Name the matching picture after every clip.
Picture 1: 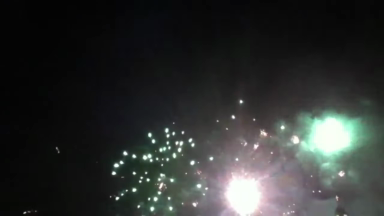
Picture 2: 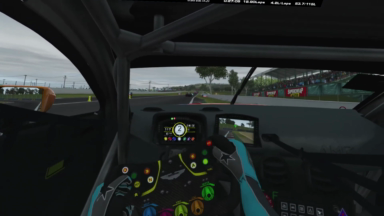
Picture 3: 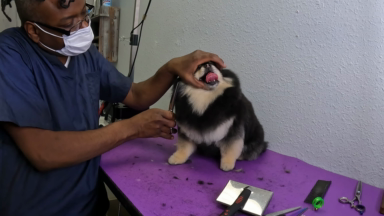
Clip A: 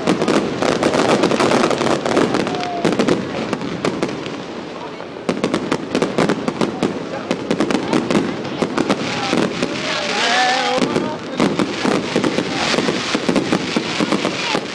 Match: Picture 1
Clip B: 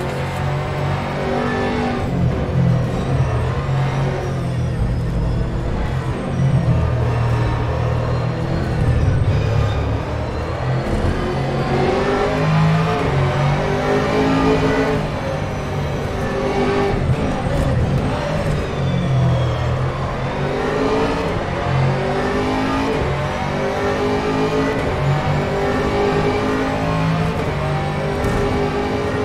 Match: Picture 2